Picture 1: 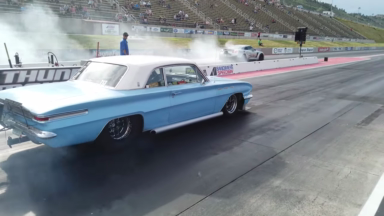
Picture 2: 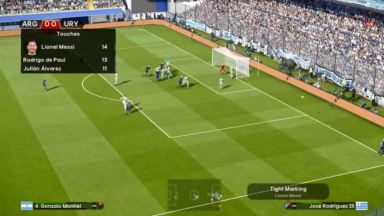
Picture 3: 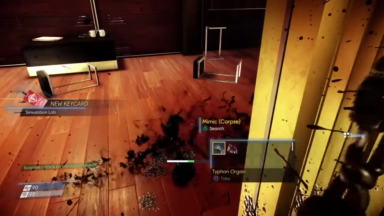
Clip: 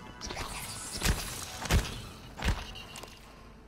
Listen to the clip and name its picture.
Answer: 3